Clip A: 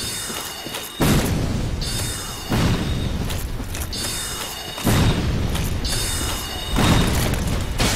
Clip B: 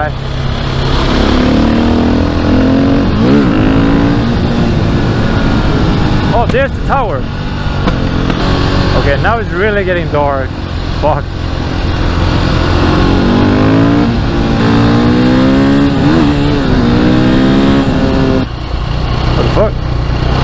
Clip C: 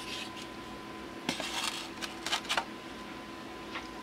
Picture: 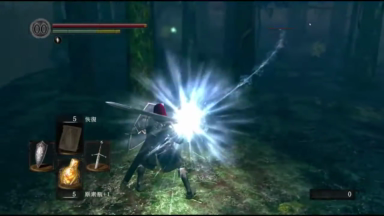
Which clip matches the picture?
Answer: A